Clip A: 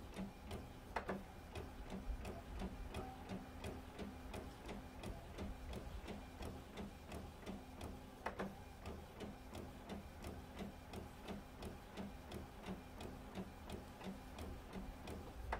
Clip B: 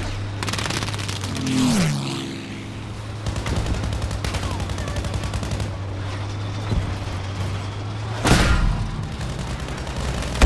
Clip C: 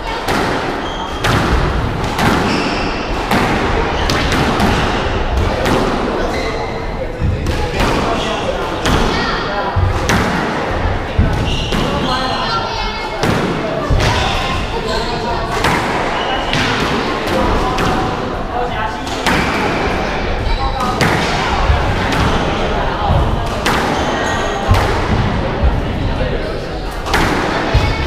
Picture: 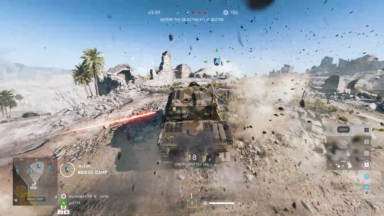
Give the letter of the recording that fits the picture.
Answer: B